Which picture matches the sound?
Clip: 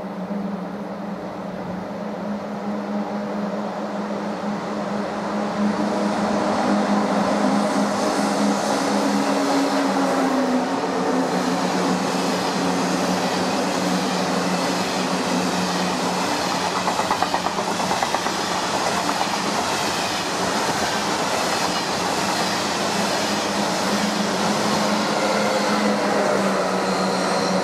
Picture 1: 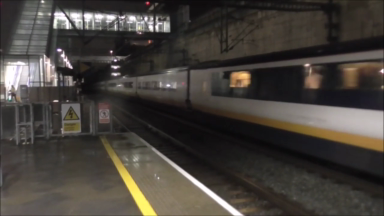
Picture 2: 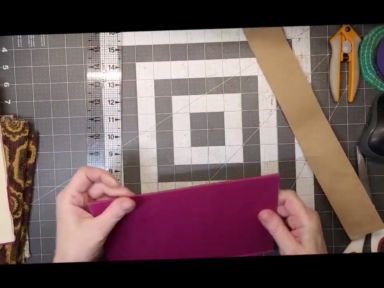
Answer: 1